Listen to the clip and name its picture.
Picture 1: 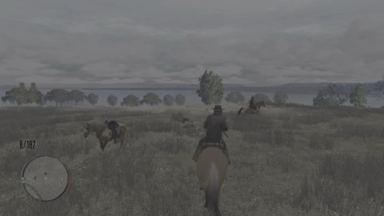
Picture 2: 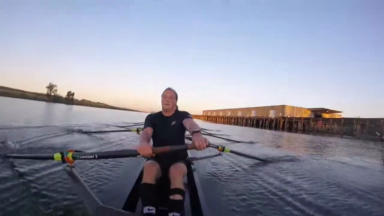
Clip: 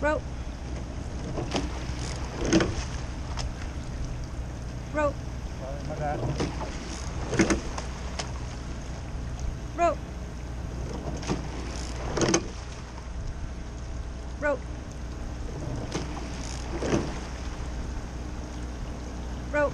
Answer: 2